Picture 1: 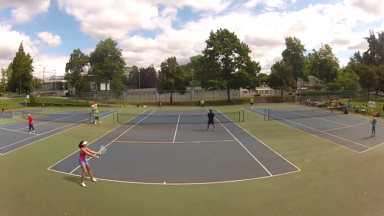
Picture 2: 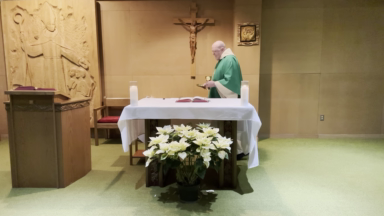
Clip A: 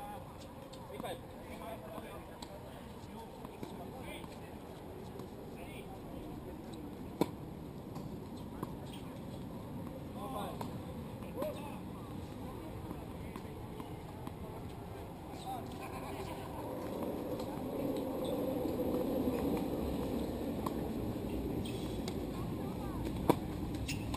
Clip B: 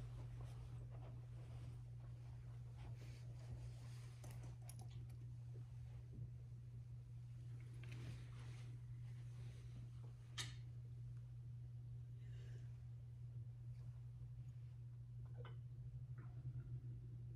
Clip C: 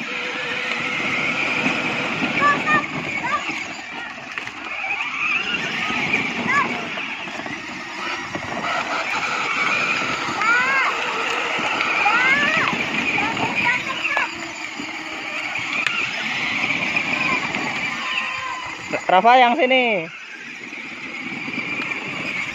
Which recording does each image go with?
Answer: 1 A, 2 B